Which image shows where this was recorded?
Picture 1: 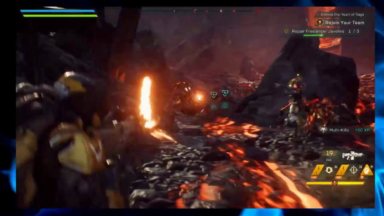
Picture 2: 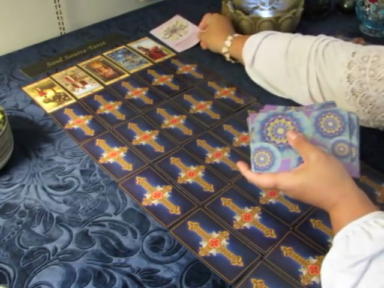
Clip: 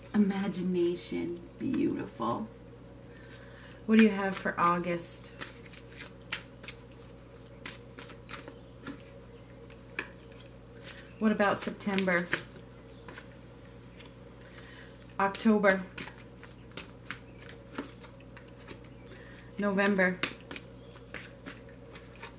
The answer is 2